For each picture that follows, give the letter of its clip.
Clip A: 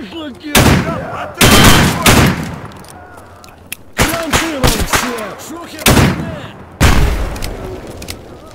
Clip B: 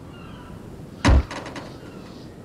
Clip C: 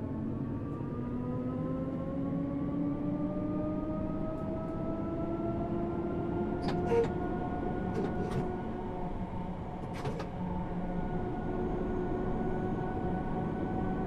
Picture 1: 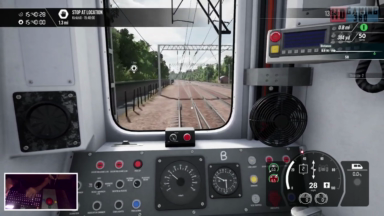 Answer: C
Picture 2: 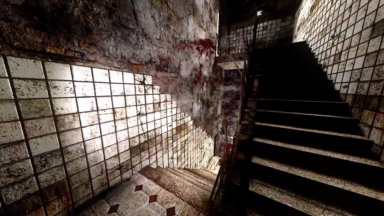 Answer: A